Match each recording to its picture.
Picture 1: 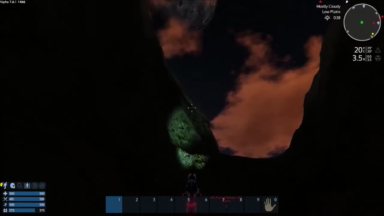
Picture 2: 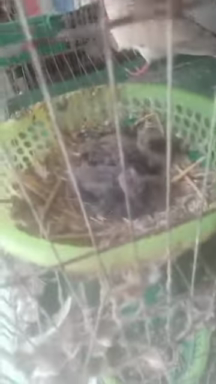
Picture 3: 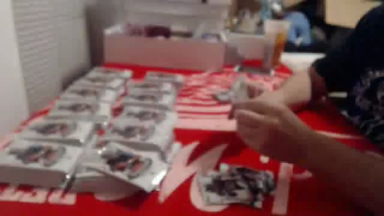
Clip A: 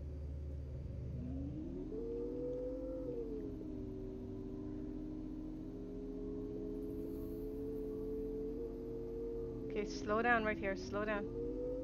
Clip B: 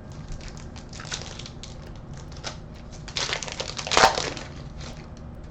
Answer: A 1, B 3